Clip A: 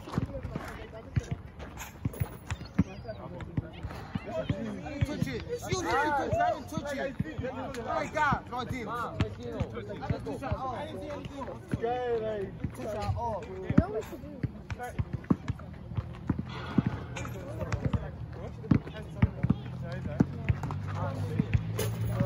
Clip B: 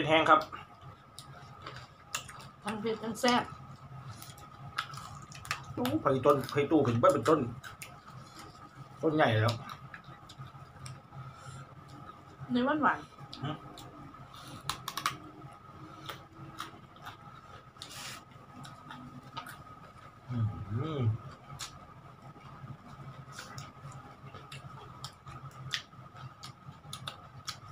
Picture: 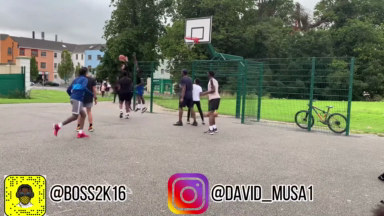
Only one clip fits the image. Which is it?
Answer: A